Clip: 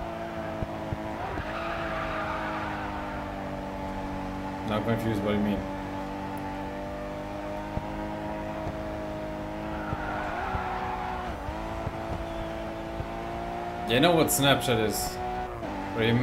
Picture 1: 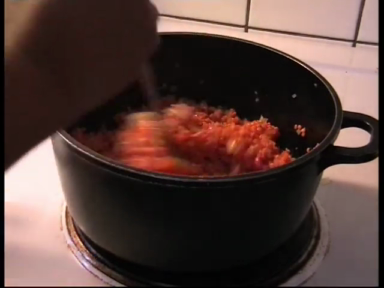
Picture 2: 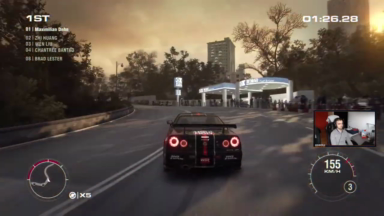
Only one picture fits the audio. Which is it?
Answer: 2